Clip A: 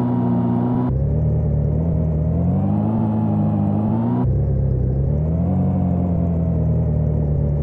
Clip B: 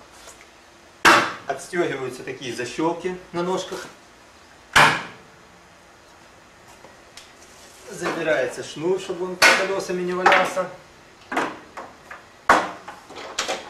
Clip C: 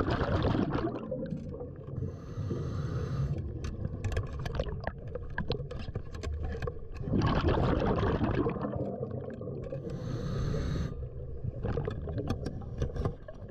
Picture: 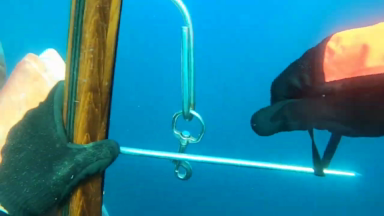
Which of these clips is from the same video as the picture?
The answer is C